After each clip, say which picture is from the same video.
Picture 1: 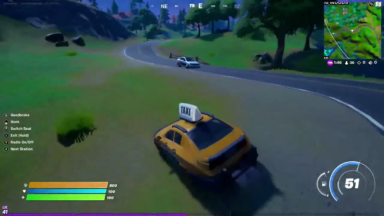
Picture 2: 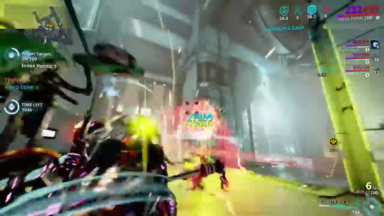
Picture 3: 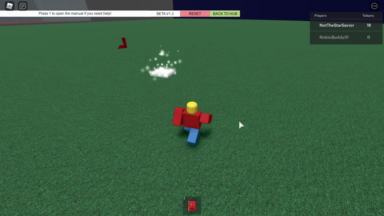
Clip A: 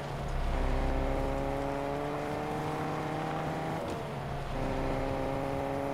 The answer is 1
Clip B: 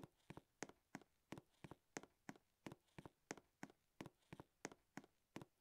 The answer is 3